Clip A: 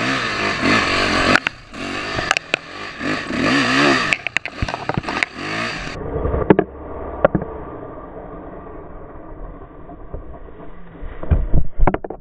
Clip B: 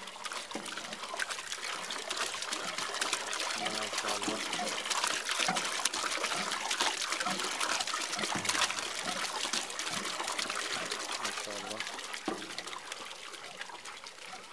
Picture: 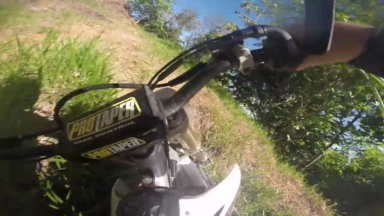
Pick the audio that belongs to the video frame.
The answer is A